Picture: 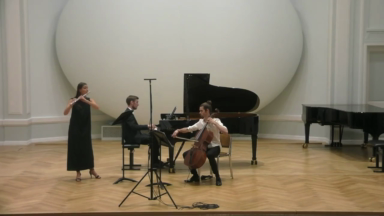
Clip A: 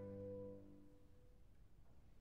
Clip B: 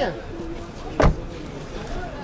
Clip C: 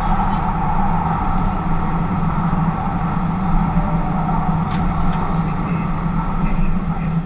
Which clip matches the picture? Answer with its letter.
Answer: A